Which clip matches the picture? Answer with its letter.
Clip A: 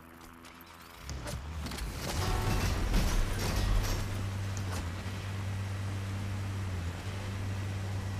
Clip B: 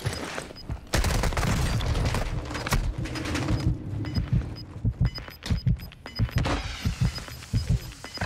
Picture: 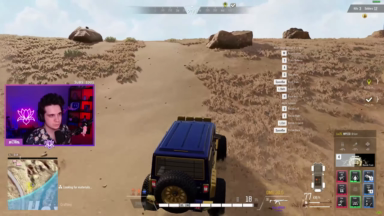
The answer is A